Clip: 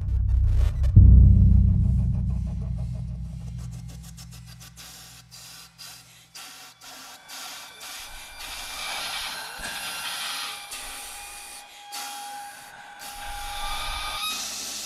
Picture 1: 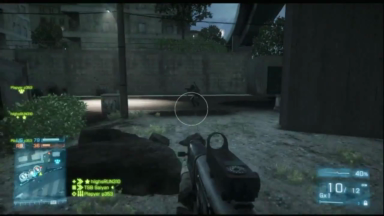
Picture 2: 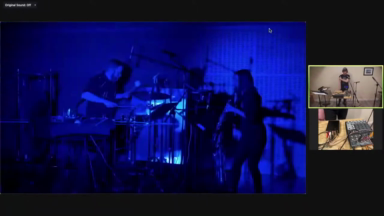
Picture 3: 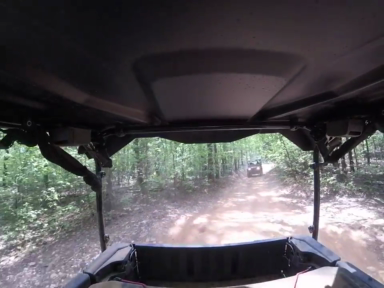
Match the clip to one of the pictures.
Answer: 2